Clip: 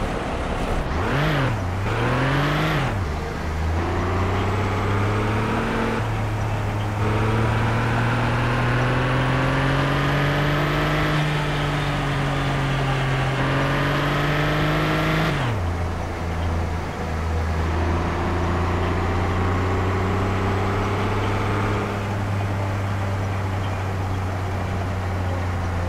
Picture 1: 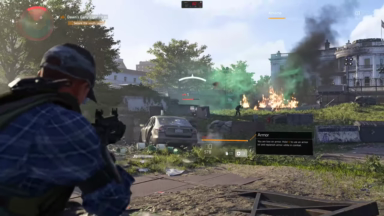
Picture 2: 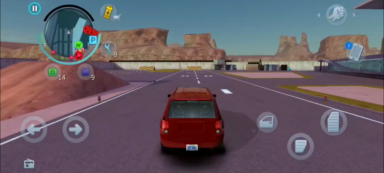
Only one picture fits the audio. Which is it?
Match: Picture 2